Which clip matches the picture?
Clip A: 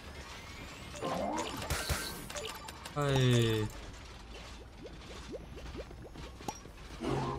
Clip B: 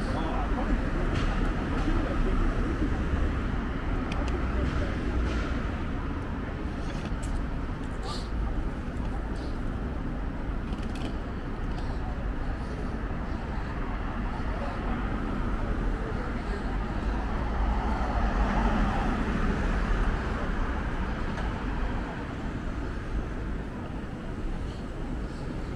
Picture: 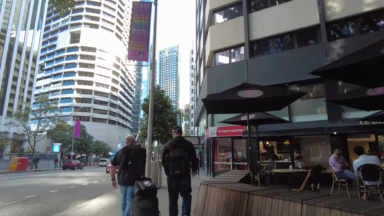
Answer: B